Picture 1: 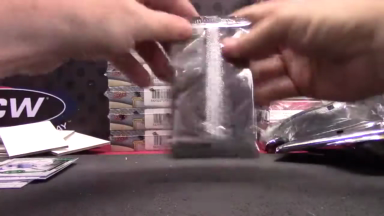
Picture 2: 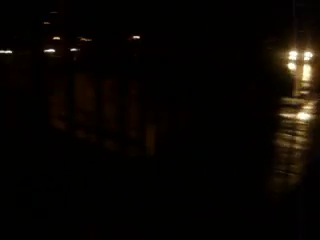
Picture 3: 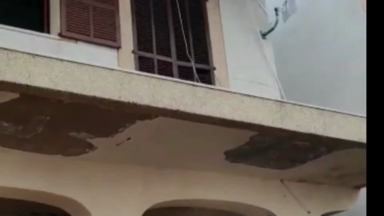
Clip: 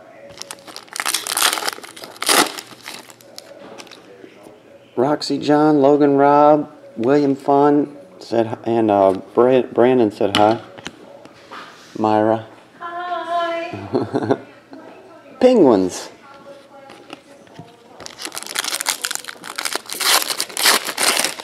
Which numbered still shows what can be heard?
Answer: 1